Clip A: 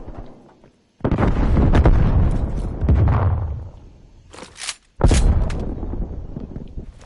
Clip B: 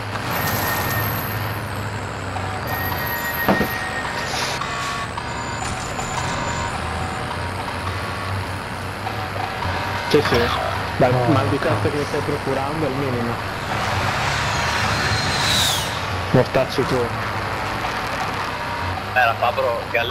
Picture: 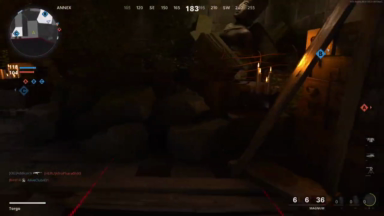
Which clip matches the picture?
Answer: A